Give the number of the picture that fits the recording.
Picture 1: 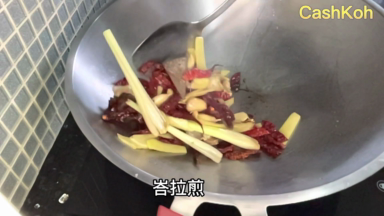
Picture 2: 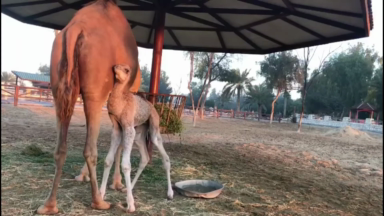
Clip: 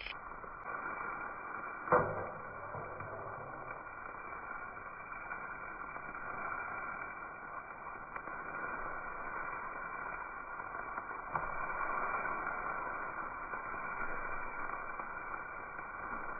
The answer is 1